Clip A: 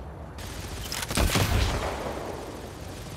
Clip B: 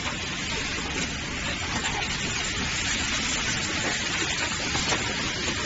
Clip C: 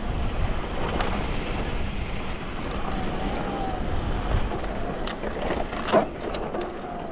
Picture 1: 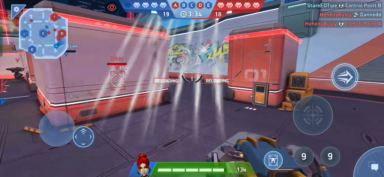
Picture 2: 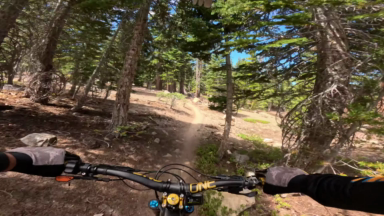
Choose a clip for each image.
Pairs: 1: A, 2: C